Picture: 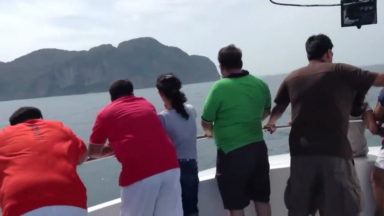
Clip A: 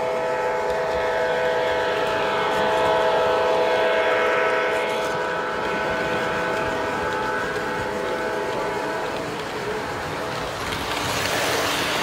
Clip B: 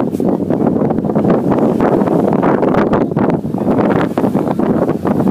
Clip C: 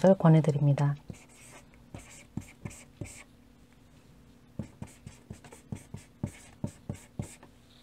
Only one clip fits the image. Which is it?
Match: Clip B